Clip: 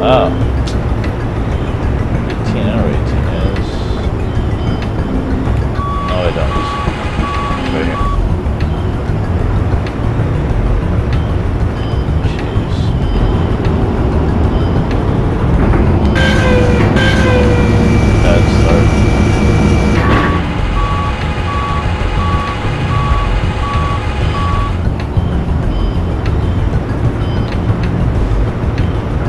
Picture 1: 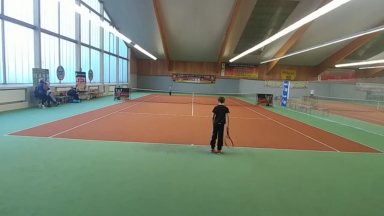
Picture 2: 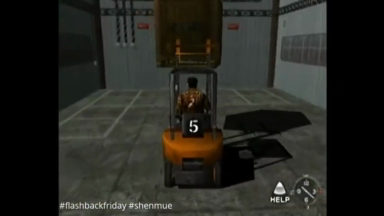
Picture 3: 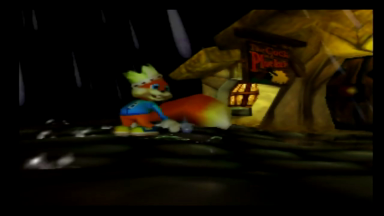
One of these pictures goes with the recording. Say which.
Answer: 2